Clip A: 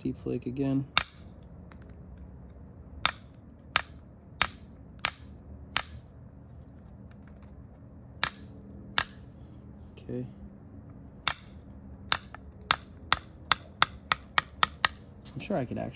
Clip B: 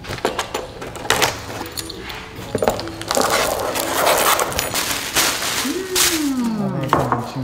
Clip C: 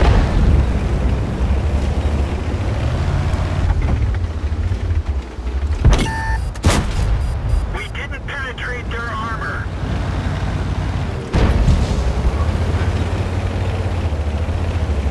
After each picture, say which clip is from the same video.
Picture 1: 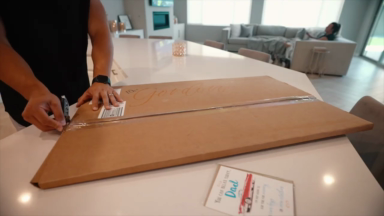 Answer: B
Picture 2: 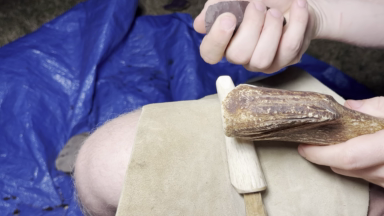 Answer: A